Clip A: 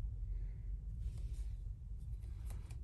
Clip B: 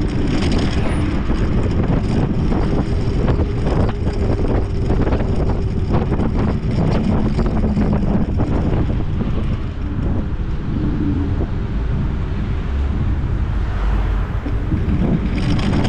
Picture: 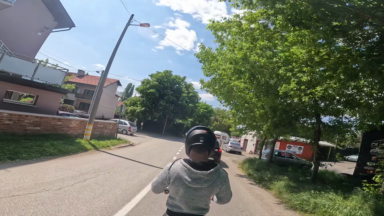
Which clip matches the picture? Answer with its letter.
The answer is B